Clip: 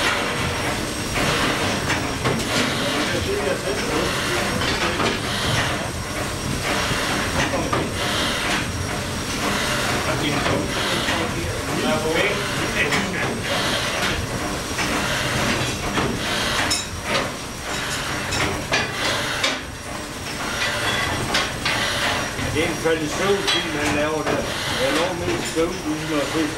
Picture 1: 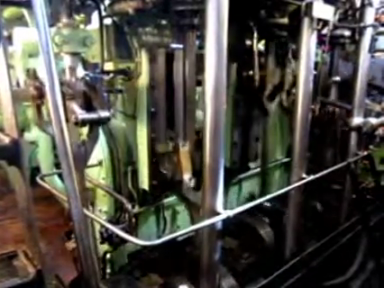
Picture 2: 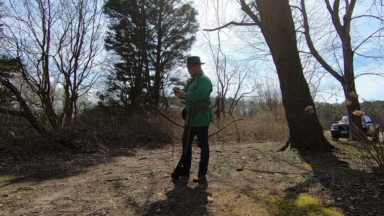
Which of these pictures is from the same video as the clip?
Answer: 1